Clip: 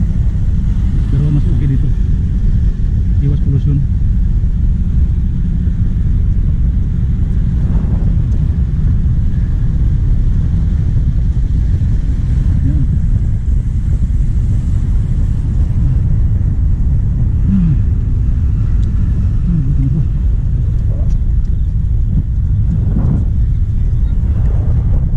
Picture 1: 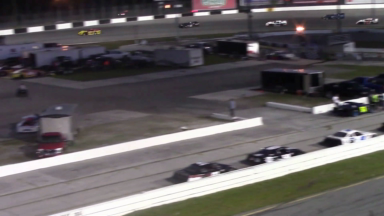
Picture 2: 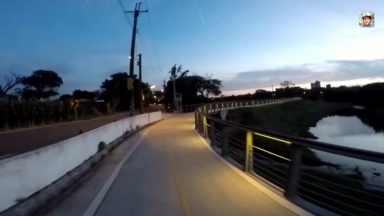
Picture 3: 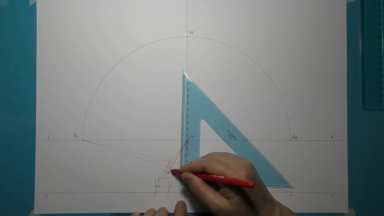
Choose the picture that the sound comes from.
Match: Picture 2